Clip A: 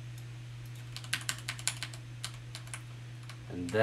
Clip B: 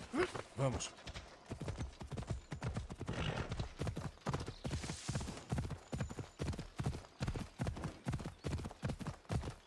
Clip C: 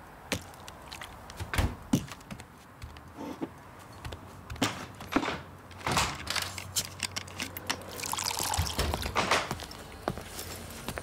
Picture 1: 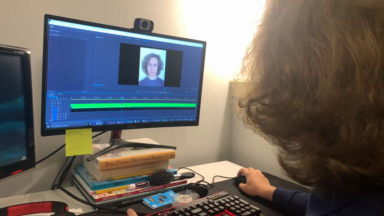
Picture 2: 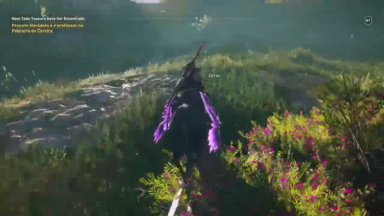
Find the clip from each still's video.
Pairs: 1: A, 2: B